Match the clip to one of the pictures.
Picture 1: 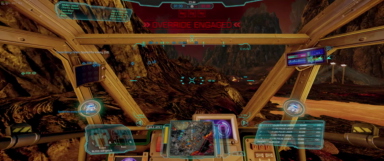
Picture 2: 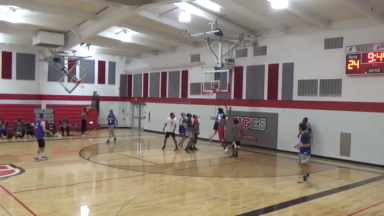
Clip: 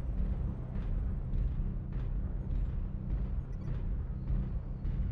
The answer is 1